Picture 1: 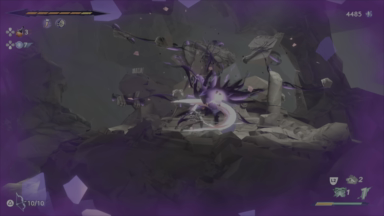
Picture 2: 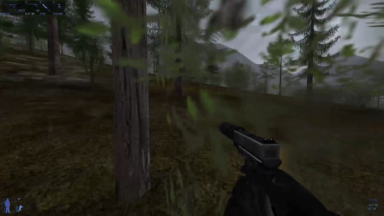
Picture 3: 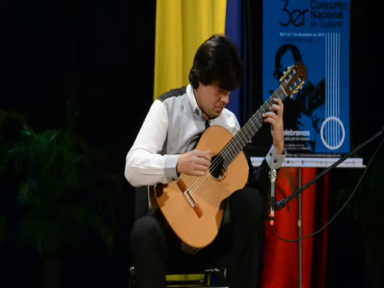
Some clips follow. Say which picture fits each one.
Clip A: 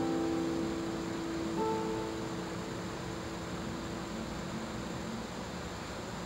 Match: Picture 3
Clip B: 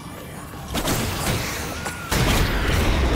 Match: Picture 1